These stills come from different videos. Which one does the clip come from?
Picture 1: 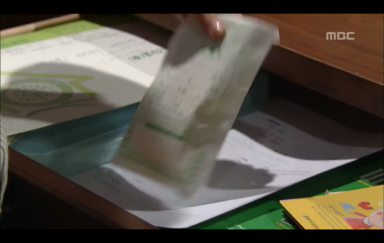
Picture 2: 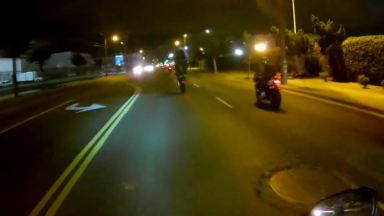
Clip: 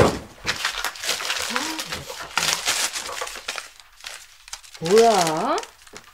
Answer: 1